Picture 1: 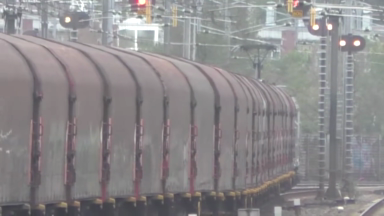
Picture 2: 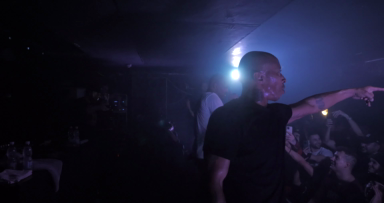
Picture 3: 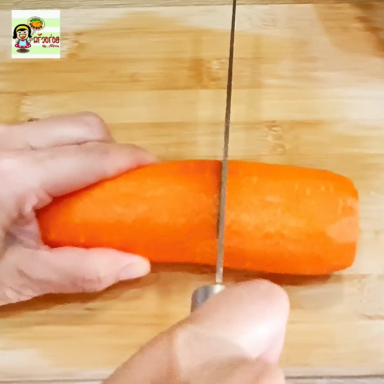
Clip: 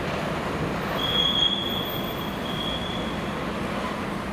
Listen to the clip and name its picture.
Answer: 1